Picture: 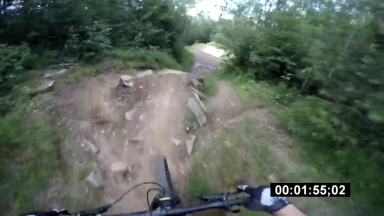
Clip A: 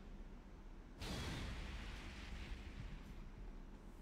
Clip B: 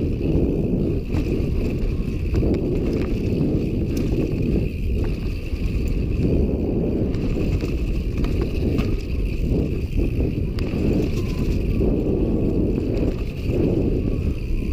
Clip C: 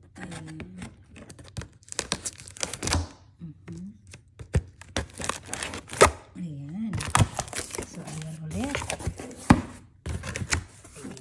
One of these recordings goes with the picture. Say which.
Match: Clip B